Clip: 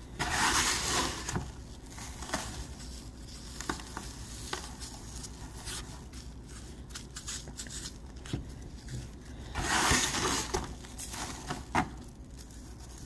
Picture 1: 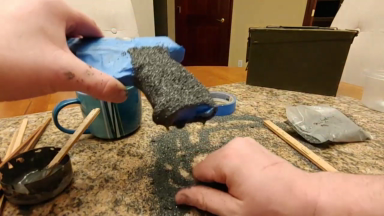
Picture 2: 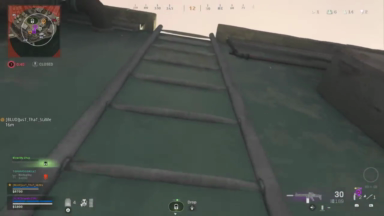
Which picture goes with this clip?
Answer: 1